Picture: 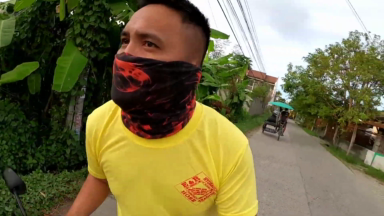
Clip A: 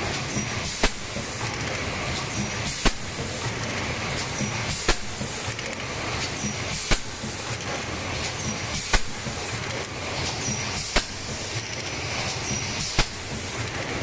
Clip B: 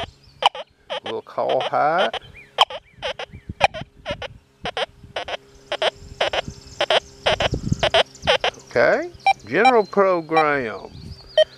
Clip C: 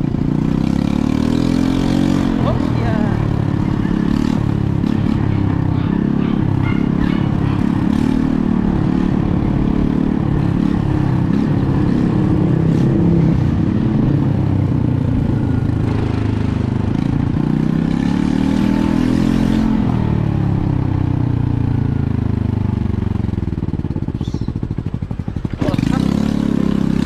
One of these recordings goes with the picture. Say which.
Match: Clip C